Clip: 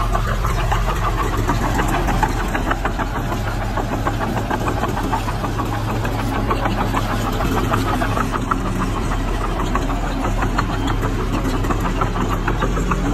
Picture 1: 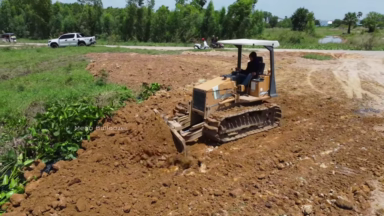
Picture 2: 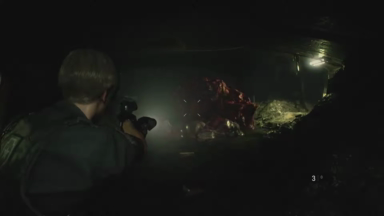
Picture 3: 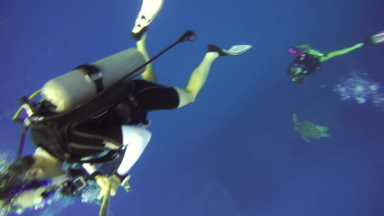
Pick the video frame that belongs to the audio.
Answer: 1